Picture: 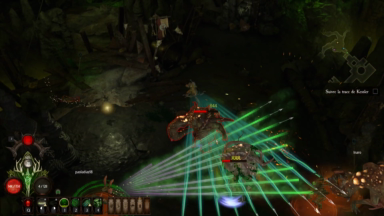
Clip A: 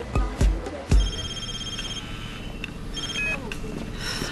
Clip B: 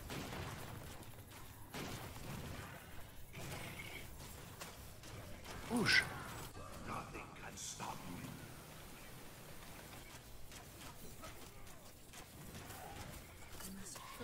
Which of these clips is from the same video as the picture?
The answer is B